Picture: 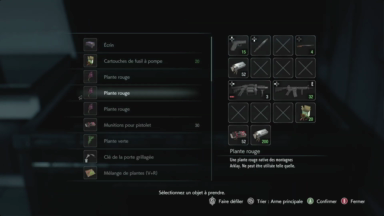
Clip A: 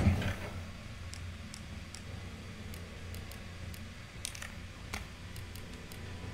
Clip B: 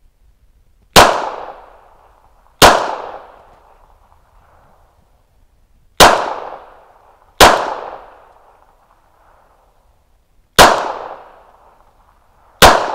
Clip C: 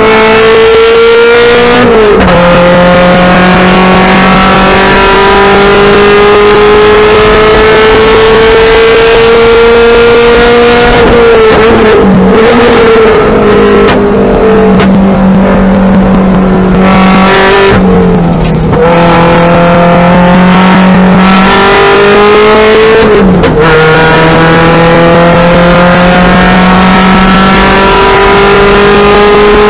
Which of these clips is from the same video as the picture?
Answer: A